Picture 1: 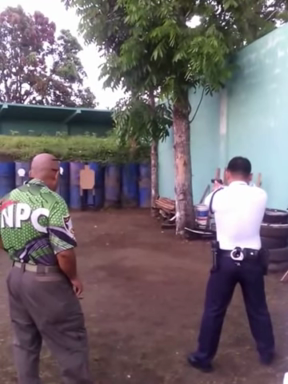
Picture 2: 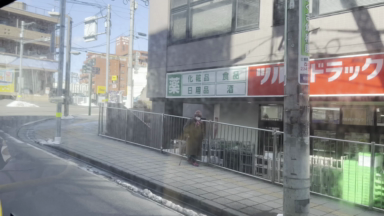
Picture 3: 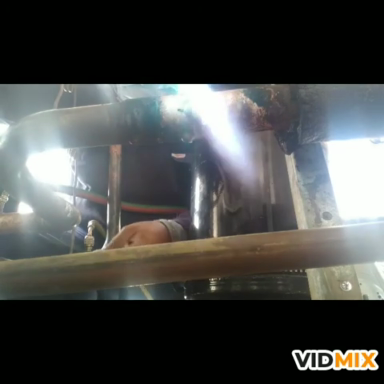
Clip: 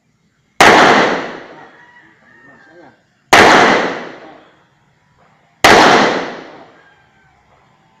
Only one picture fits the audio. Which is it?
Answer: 1